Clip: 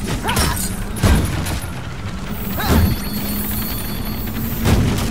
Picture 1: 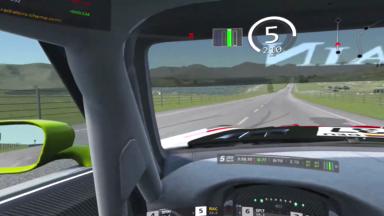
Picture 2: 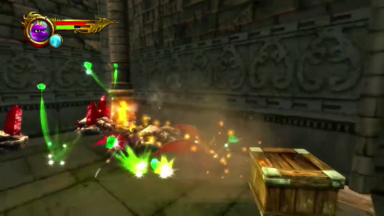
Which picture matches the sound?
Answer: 2